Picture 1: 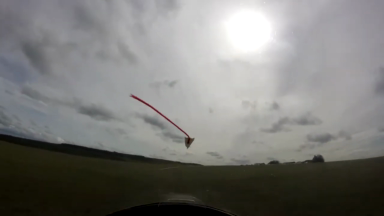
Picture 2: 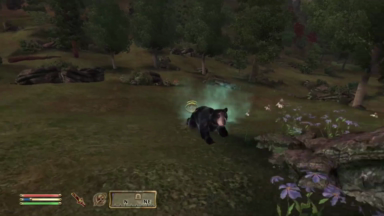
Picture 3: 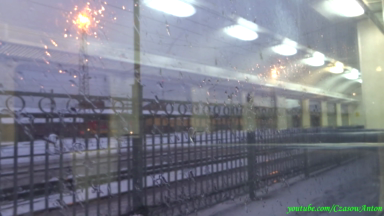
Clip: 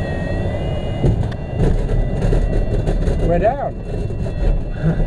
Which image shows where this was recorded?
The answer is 1